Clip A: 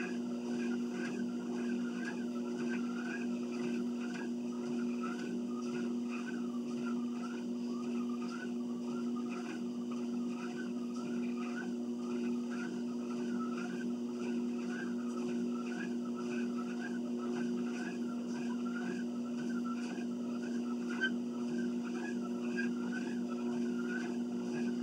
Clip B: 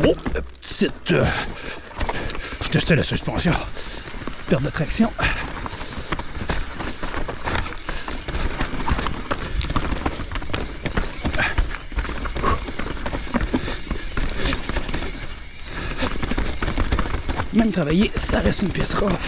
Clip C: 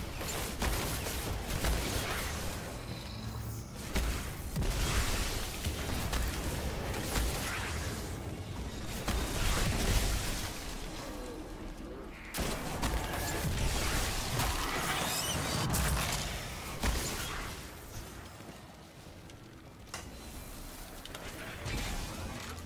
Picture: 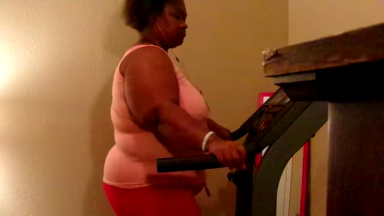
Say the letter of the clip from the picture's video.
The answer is A